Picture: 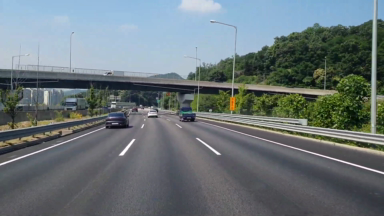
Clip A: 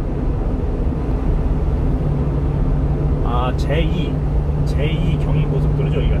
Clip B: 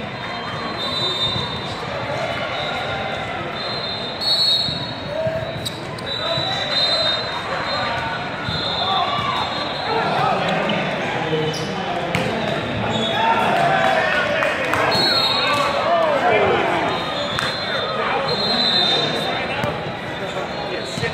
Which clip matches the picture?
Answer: A